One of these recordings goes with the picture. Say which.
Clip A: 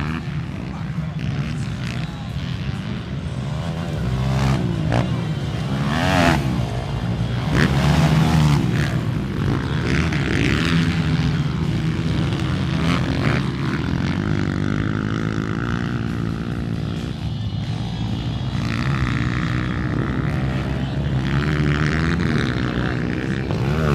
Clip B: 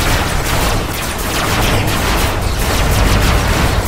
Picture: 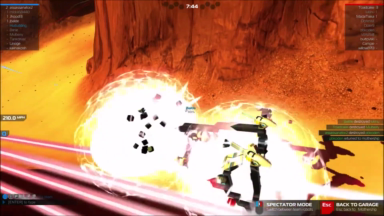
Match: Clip B